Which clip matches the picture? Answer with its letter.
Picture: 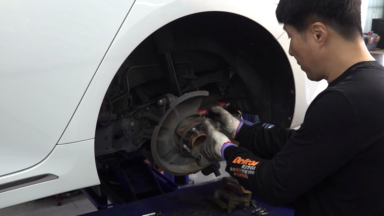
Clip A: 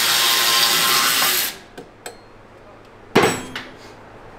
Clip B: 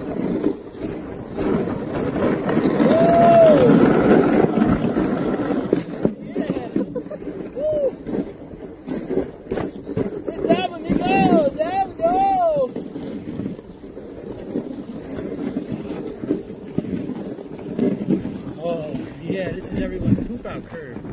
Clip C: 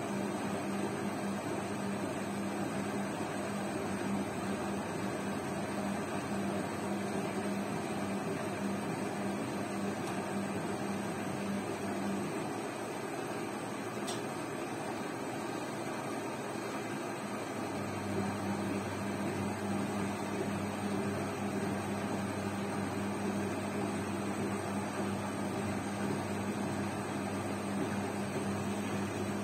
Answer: A